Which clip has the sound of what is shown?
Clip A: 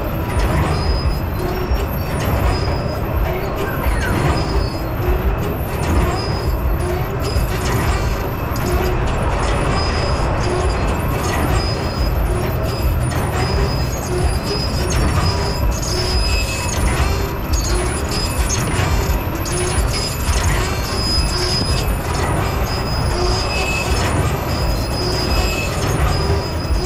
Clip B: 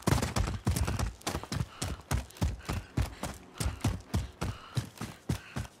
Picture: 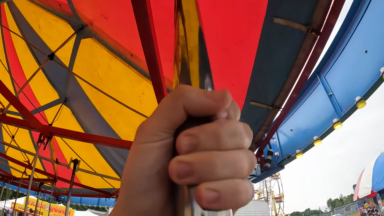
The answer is A